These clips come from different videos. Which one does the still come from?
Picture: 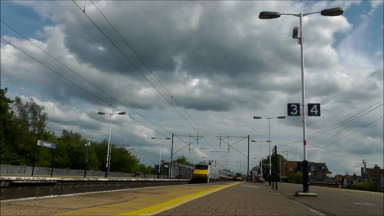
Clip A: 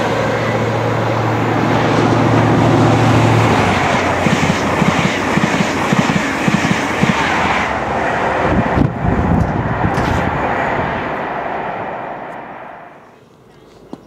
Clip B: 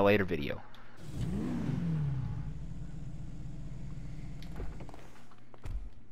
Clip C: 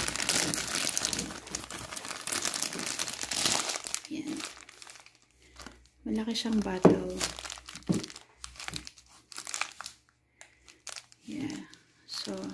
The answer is A